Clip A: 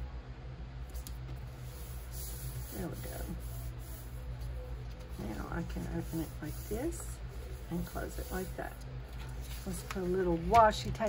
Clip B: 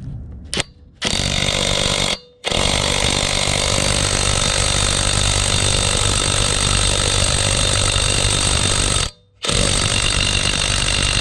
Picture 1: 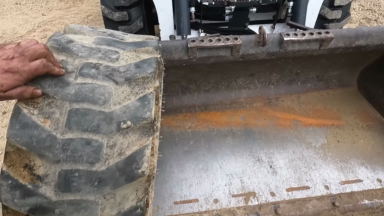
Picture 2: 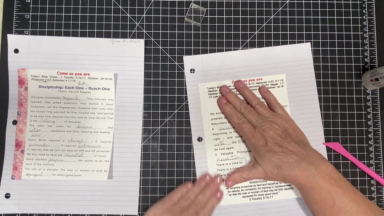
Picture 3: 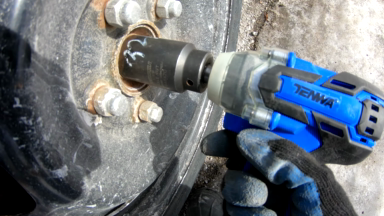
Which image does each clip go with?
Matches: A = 2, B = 3